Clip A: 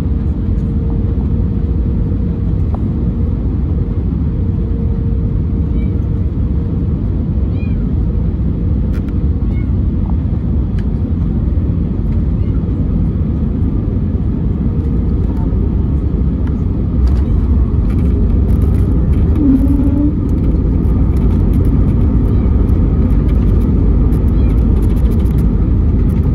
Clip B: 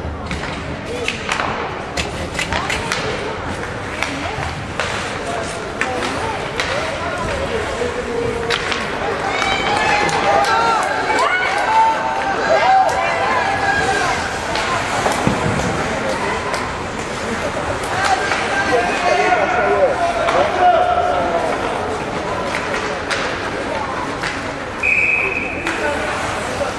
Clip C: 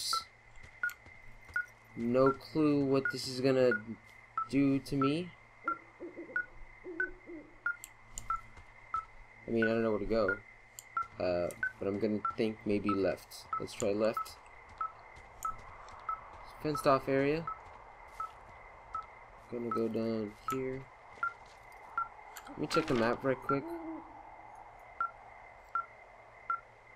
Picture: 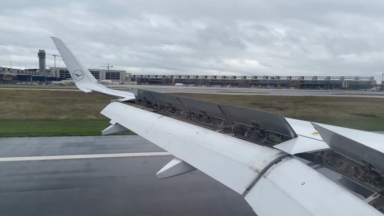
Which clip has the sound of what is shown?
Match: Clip A